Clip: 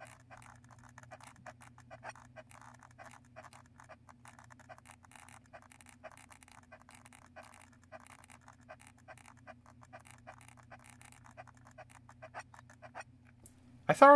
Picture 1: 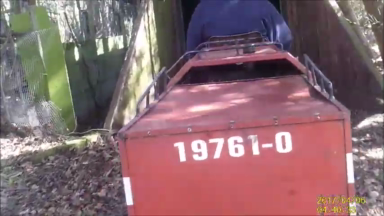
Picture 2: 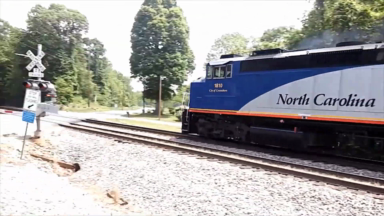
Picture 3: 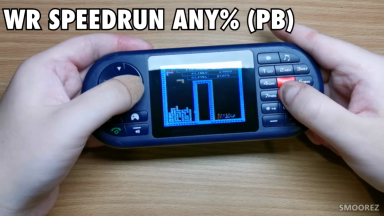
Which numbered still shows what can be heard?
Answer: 3